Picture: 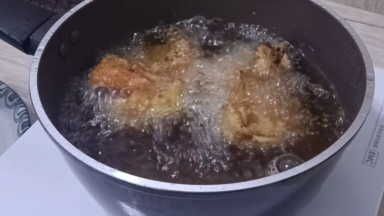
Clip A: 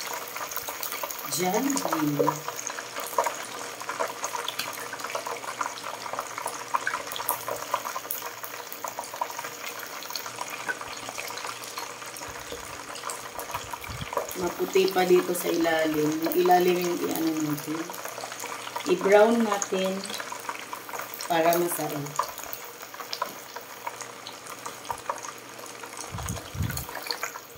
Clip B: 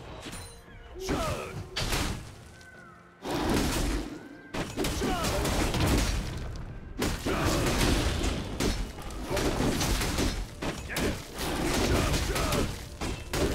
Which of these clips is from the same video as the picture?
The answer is A